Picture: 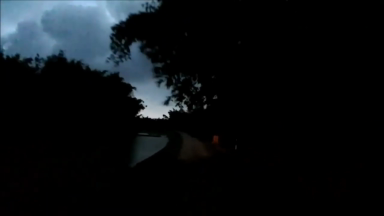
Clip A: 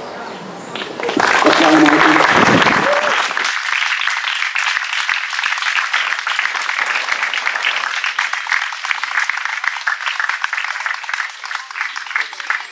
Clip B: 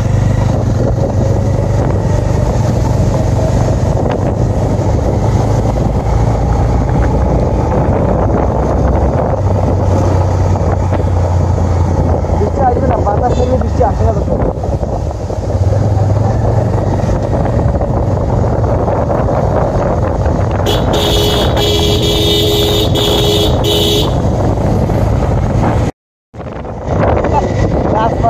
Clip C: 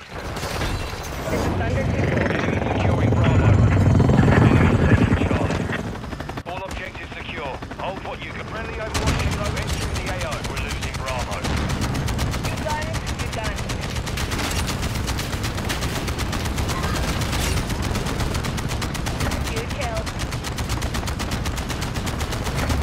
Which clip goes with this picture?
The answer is B